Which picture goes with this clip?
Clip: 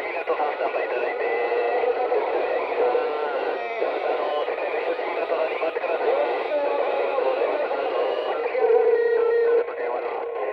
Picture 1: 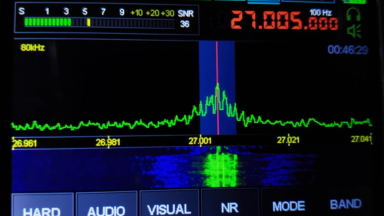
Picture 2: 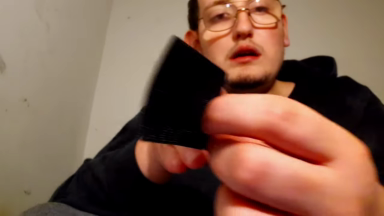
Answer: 1